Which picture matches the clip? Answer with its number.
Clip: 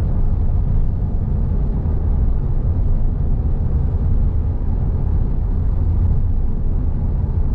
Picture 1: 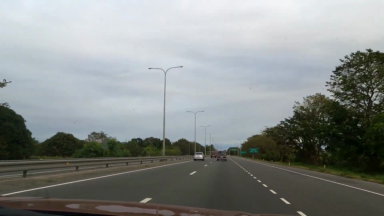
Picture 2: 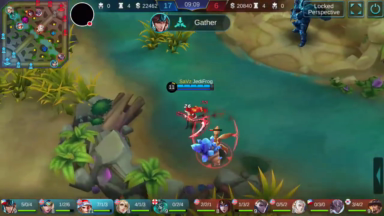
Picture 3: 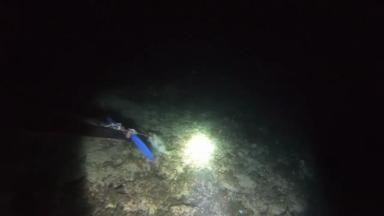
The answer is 1